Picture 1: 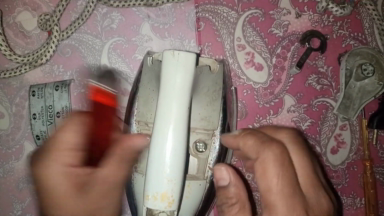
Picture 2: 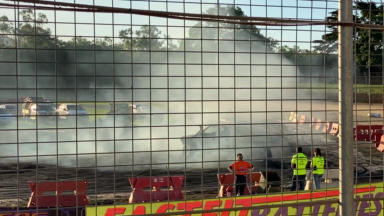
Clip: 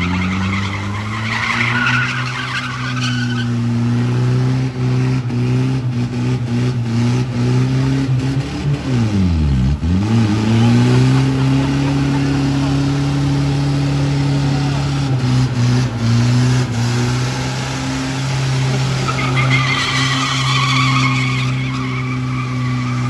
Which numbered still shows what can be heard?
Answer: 2